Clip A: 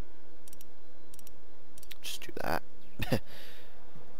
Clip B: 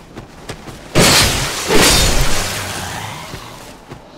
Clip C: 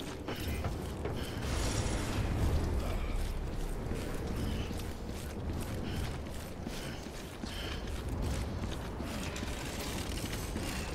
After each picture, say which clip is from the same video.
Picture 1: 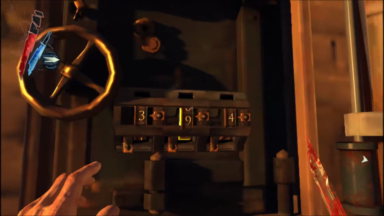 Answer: A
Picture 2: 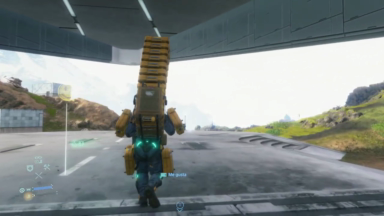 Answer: C